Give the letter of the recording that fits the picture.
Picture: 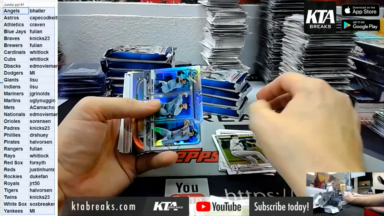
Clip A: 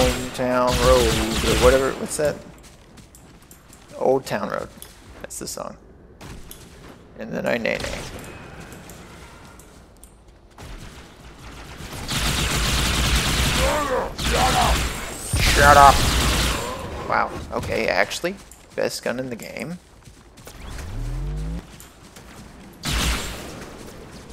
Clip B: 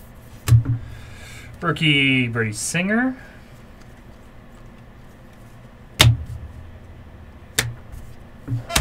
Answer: B